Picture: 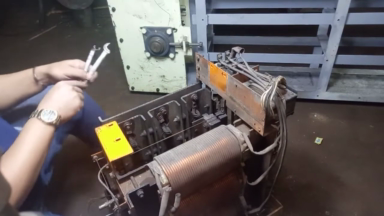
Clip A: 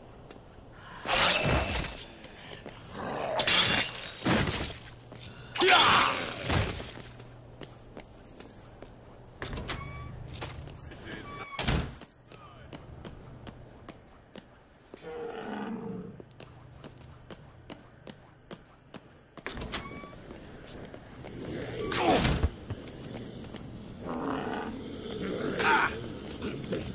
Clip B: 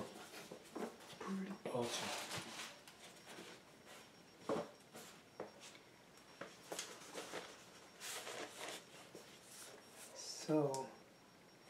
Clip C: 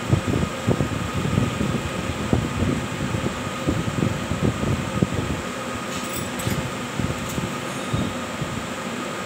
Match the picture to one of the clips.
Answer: C